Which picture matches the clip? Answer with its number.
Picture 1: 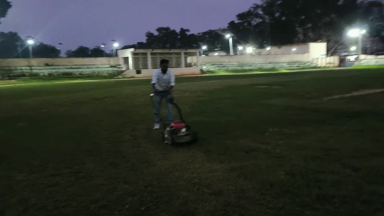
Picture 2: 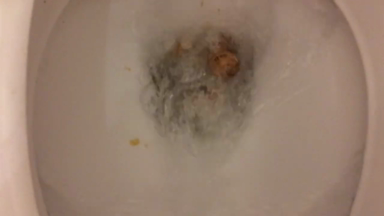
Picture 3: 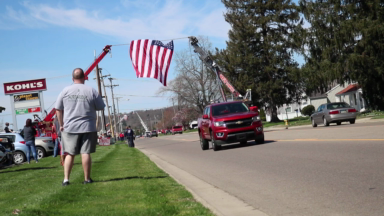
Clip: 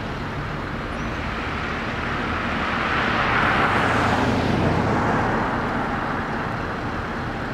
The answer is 3